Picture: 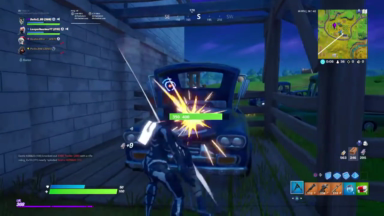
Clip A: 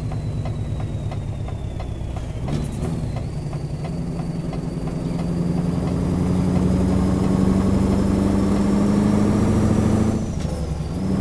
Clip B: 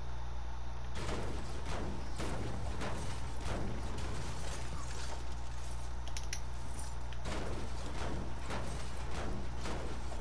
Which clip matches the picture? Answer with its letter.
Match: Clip B